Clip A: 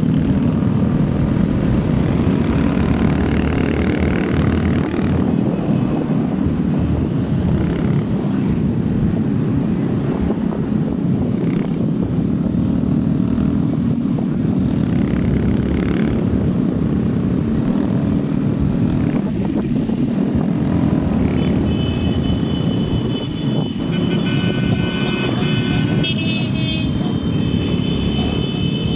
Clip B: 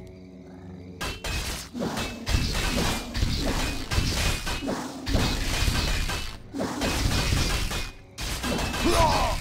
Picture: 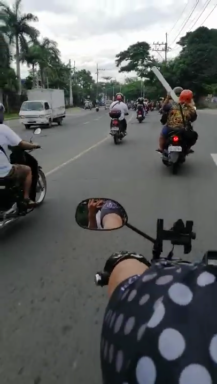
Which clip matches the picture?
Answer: A